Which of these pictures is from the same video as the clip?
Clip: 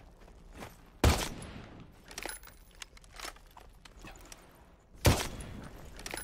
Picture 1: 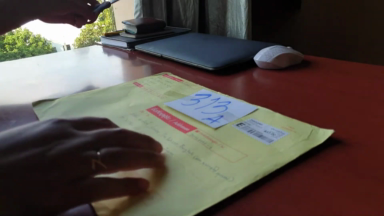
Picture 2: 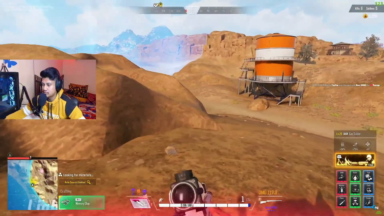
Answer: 2